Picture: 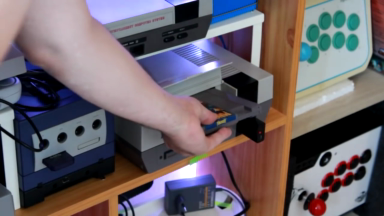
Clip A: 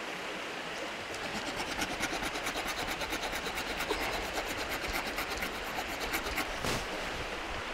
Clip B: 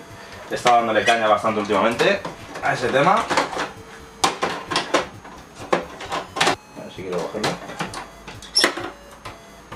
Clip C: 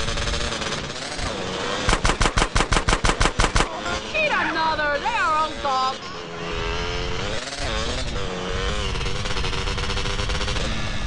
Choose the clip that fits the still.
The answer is B